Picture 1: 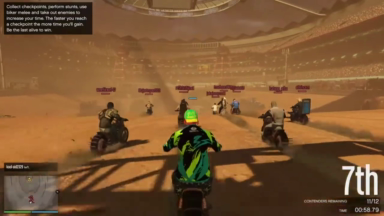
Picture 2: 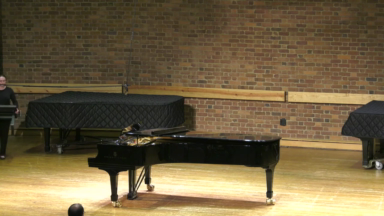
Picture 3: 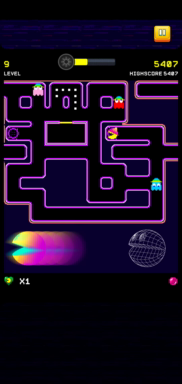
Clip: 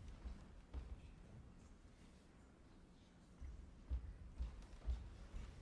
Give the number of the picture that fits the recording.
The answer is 2